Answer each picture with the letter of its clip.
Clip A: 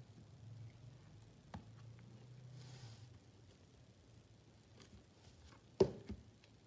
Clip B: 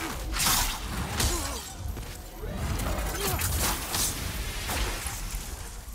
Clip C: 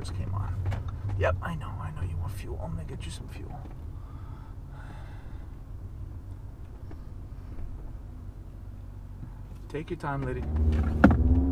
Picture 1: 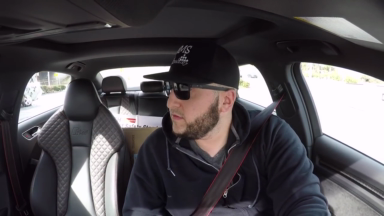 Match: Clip C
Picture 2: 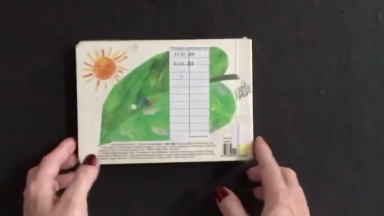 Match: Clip A